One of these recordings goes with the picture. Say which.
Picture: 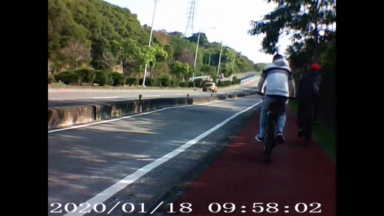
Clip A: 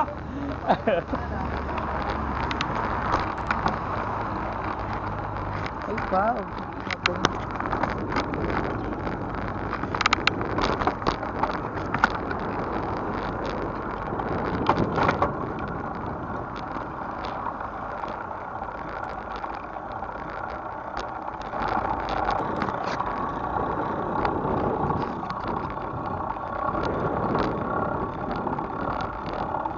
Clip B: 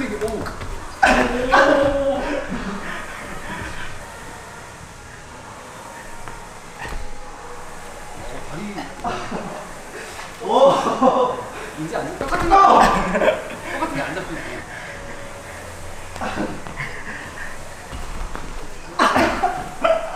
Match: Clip A